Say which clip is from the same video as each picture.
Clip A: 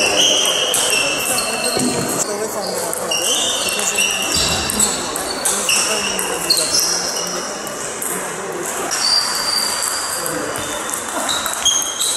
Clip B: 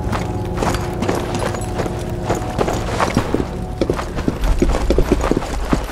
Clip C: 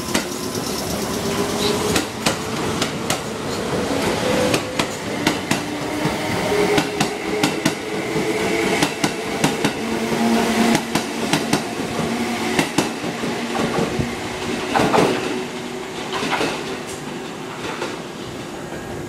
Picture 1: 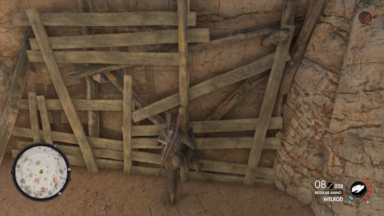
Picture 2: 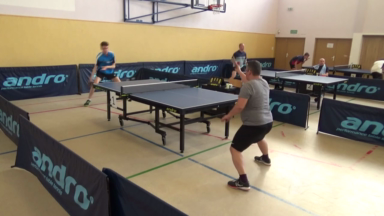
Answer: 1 B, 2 A